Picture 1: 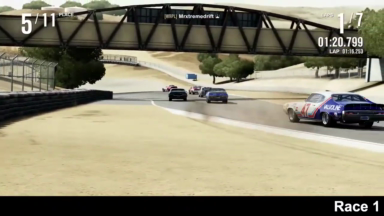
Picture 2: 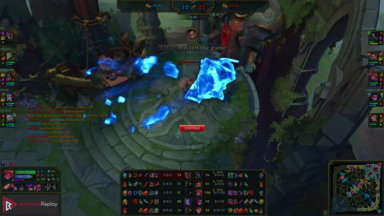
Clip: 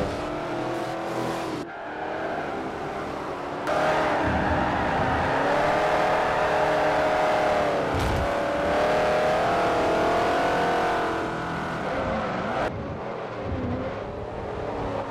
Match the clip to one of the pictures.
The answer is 1